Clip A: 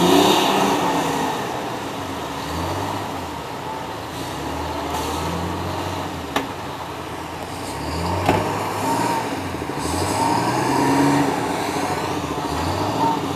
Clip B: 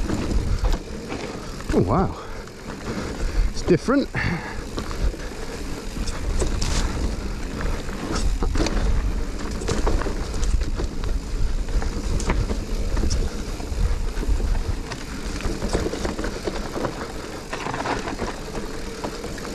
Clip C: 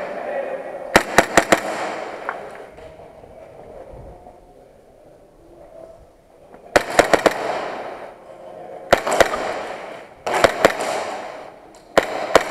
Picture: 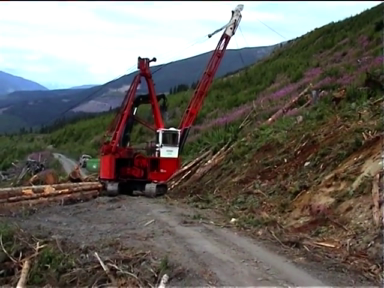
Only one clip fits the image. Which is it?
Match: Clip A